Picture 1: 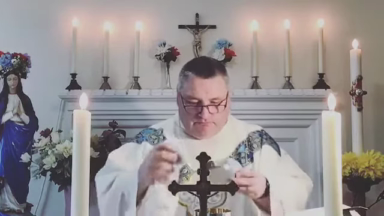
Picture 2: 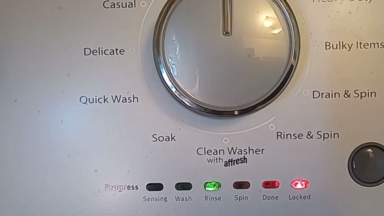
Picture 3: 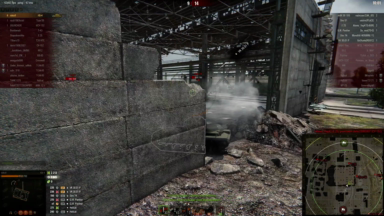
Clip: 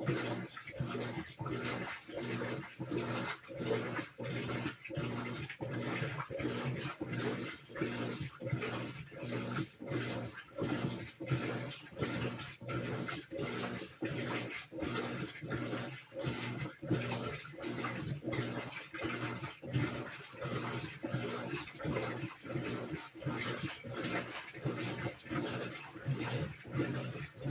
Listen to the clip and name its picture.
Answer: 2